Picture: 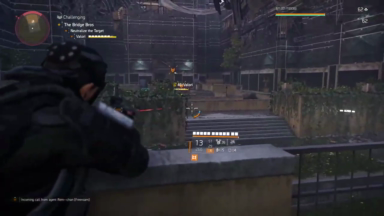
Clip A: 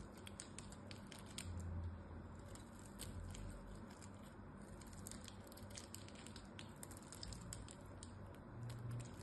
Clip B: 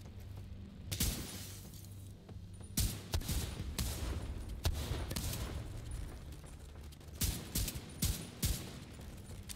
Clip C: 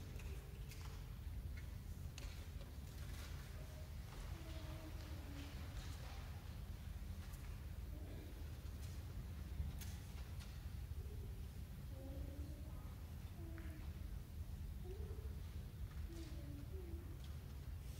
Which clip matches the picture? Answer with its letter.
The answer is B